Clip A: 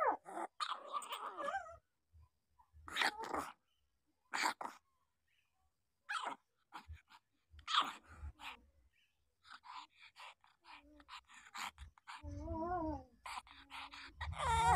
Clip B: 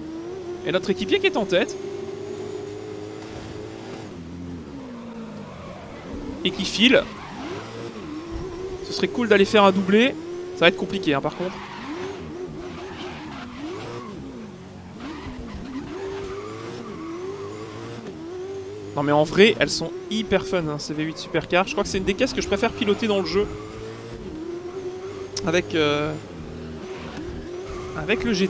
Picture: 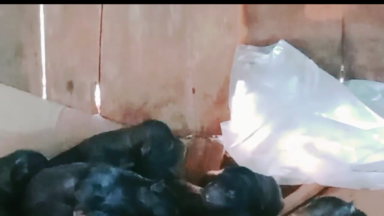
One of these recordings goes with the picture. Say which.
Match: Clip A